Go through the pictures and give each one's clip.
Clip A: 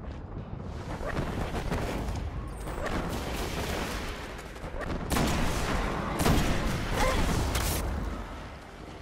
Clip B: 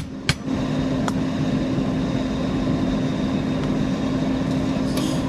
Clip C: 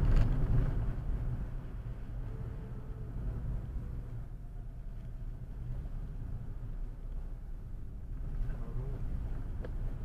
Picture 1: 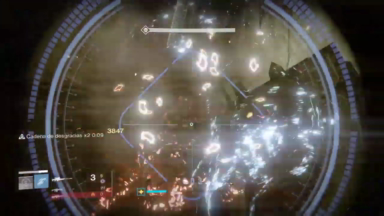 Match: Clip A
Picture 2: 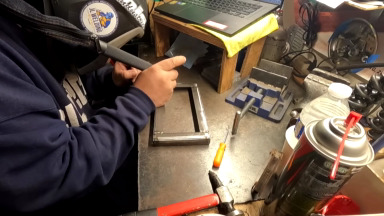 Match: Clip B